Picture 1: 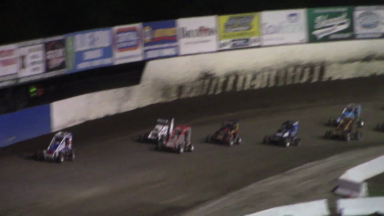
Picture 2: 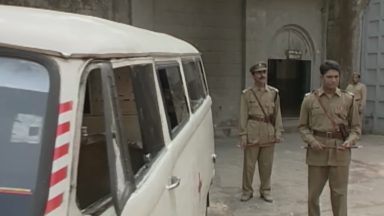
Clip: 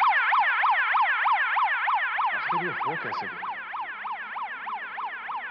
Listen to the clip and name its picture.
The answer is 2